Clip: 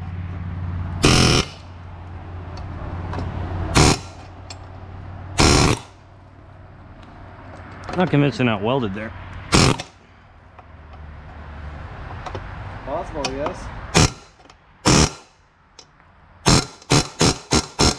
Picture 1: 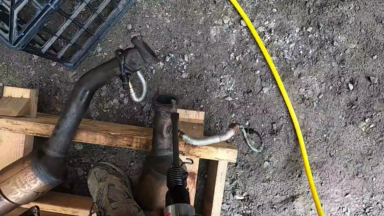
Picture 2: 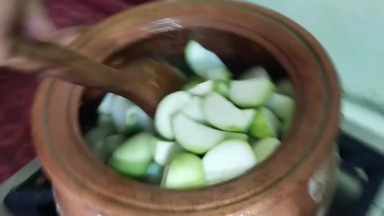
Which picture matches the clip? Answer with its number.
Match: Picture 1